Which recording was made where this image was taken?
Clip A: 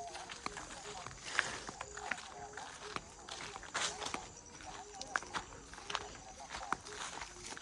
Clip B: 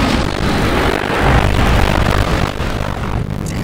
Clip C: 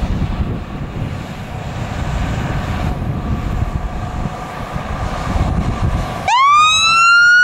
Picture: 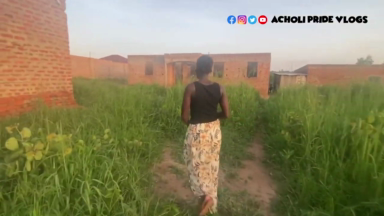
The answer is A